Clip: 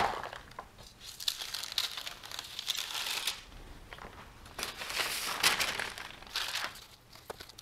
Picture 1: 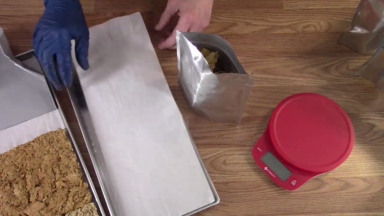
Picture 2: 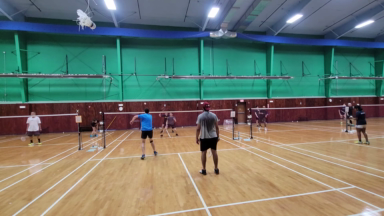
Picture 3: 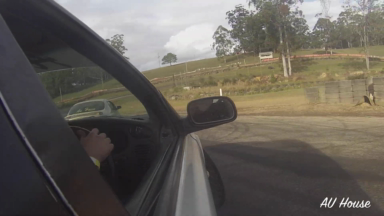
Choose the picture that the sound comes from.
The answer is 1